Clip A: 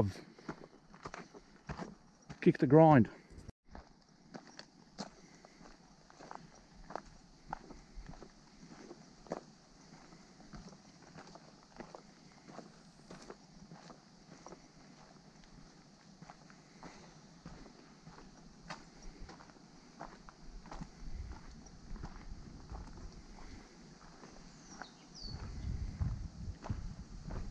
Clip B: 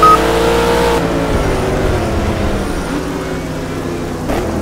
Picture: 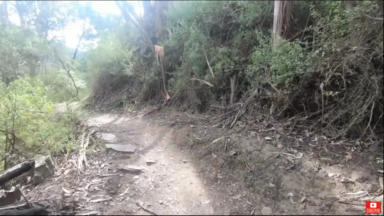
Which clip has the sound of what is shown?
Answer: A